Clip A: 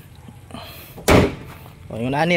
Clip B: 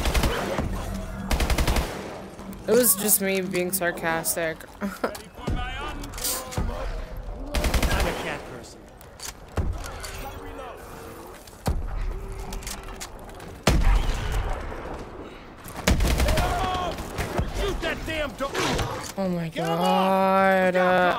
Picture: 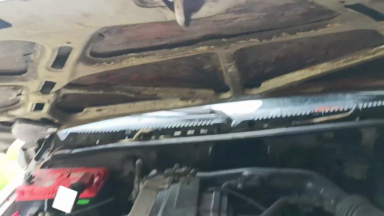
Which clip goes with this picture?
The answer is A